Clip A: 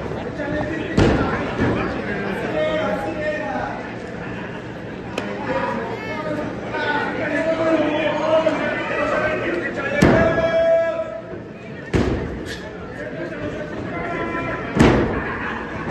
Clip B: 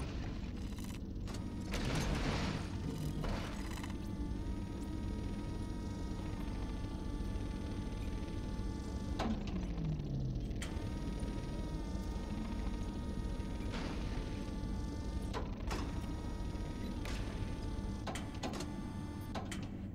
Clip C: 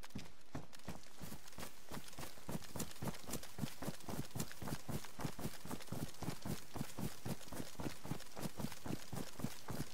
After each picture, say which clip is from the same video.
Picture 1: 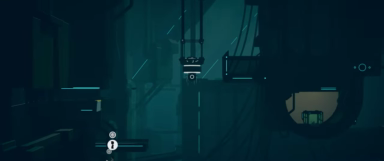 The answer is B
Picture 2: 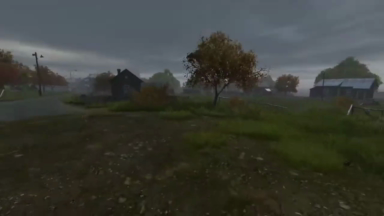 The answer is C